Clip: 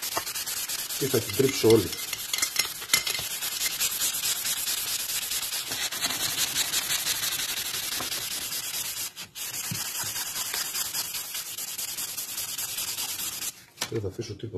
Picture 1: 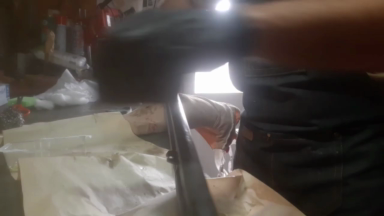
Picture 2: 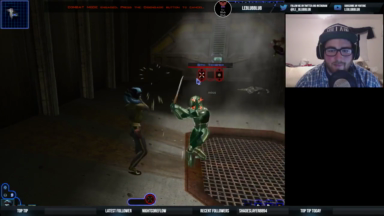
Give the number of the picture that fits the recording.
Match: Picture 1